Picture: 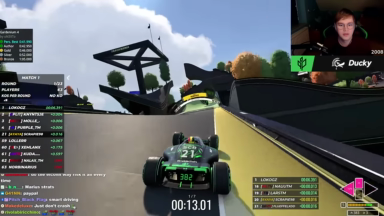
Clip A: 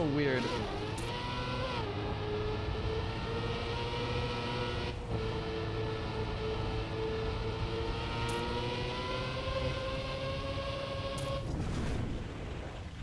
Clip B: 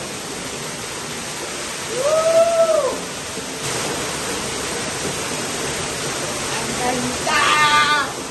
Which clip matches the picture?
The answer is A